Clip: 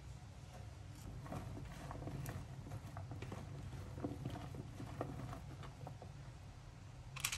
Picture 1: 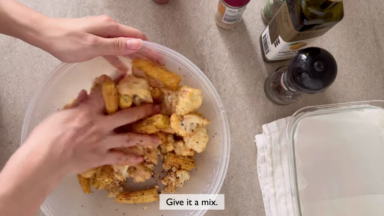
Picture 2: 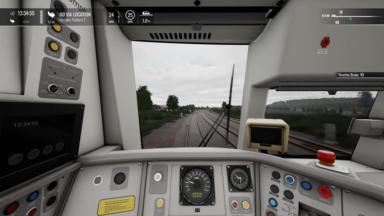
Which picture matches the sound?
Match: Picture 1